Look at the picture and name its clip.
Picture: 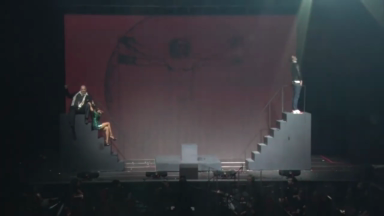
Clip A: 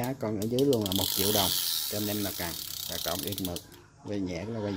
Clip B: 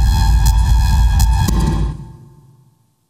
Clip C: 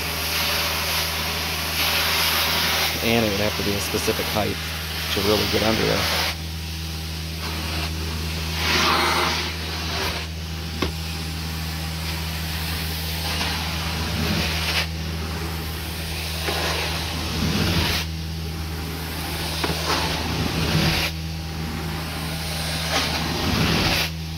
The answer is B